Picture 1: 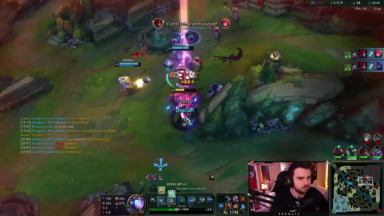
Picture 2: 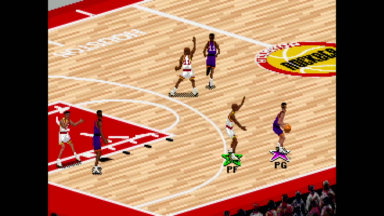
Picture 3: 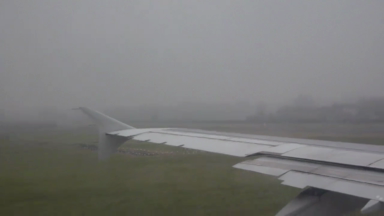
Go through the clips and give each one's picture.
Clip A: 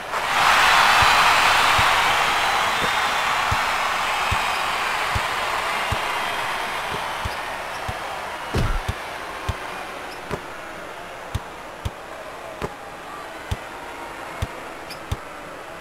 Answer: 2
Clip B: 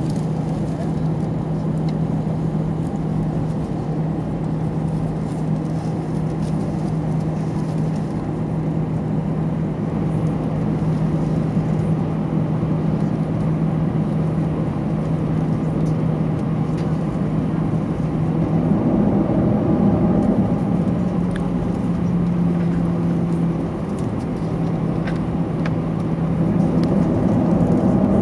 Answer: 3